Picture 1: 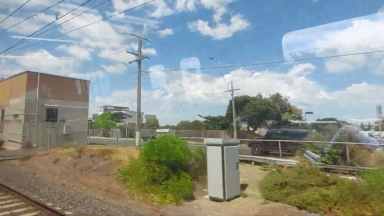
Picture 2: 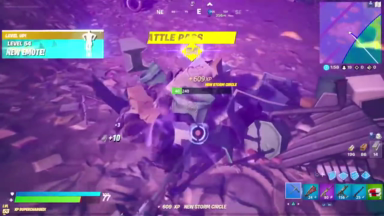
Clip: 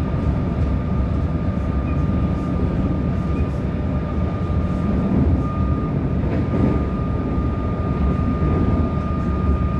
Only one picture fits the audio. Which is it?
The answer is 1